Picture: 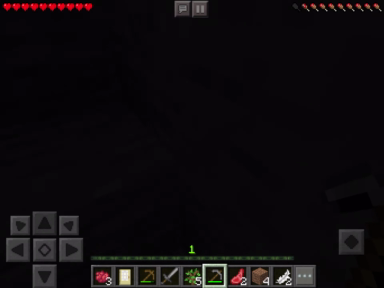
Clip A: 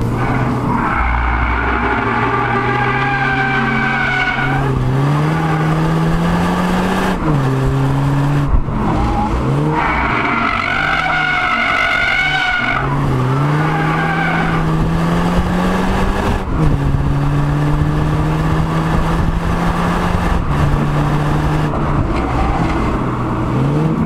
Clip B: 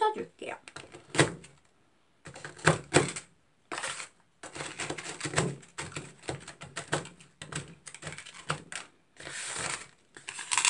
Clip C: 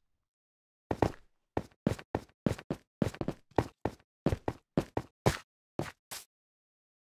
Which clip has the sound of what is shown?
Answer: C